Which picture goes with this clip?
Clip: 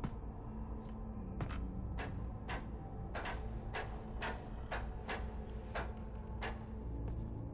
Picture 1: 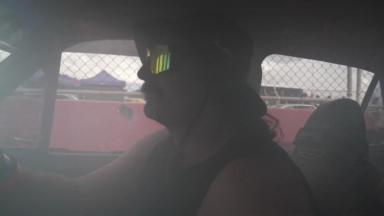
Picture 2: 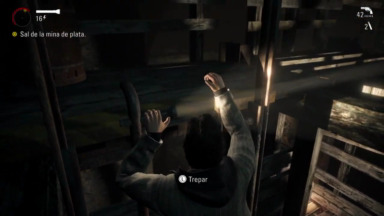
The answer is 2